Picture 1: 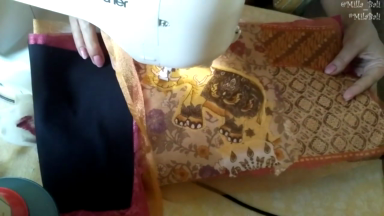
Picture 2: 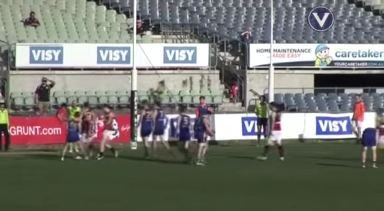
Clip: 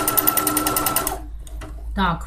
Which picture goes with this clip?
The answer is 1